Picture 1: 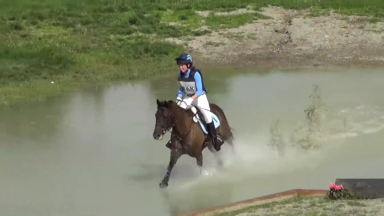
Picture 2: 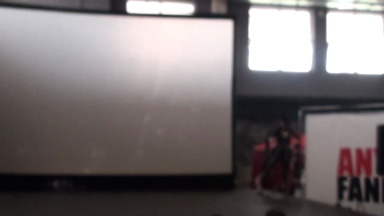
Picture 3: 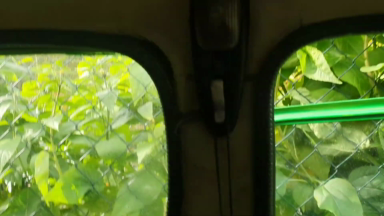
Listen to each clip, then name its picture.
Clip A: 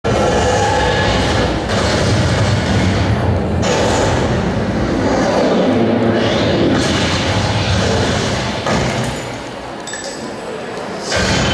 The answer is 2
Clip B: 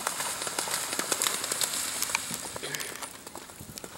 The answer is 1